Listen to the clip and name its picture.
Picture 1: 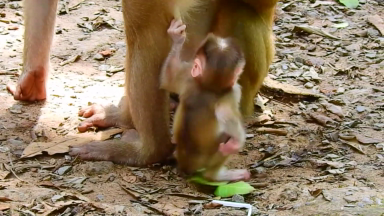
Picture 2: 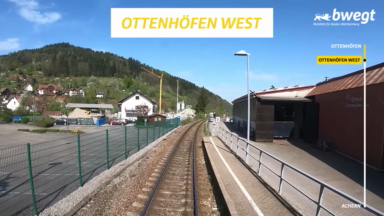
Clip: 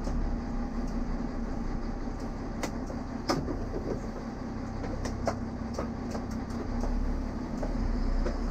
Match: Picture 2